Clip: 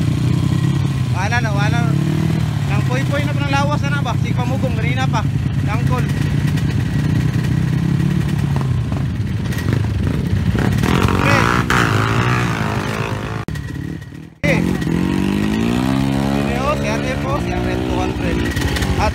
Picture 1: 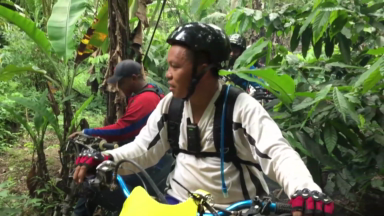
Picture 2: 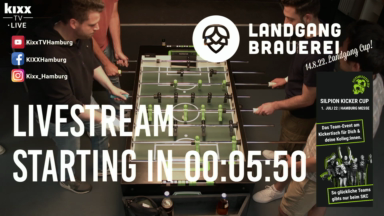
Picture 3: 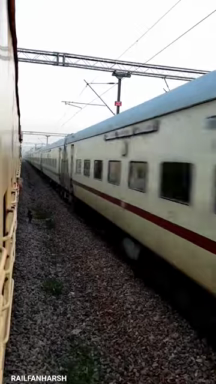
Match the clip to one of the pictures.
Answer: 1